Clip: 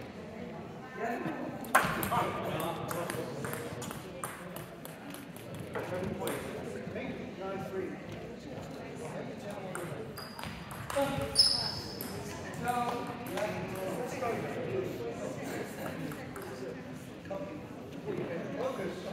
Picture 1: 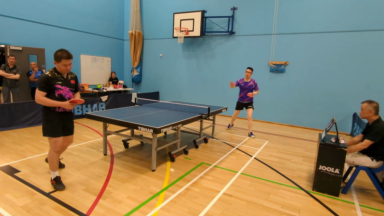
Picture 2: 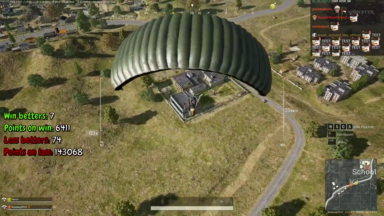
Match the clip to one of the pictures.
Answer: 1